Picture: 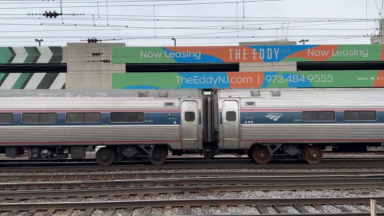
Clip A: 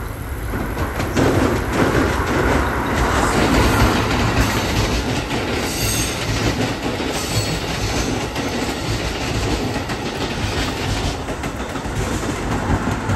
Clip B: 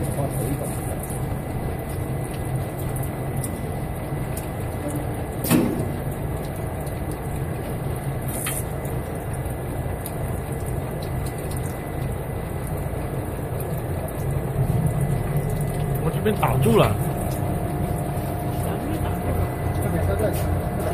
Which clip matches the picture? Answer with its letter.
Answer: A